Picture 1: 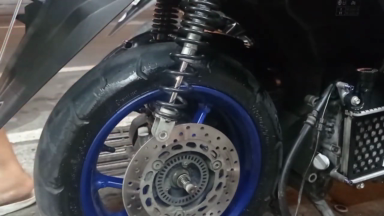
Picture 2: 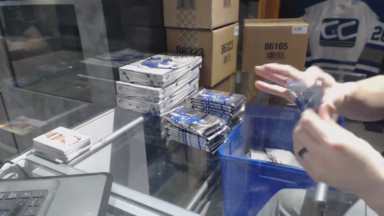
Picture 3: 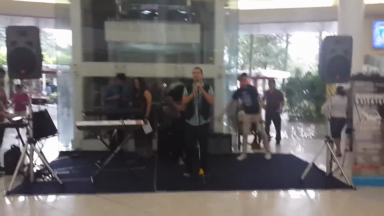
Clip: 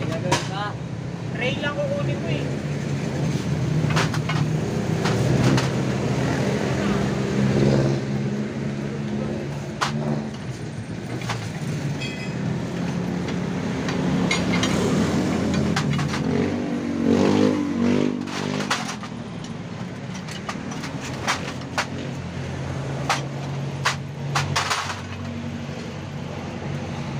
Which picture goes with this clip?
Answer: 1